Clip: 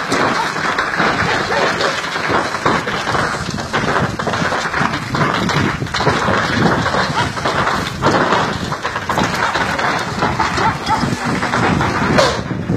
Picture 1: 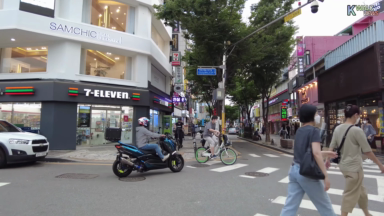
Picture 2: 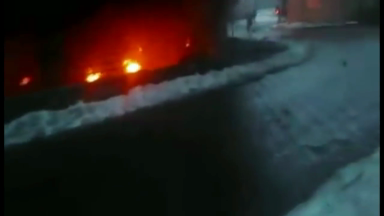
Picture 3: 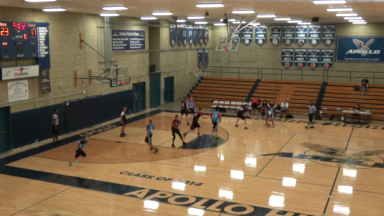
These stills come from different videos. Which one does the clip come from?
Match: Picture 2